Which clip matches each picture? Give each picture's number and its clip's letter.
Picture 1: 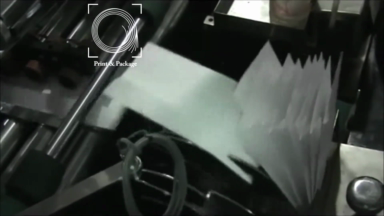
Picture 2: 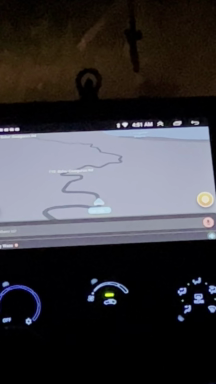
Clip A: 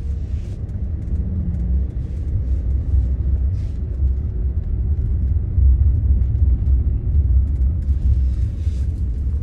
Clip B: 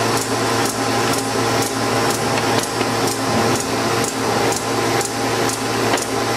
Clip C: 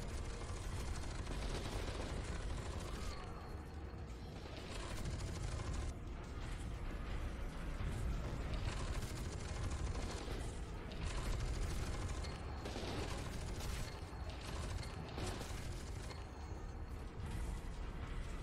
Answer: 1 B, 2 A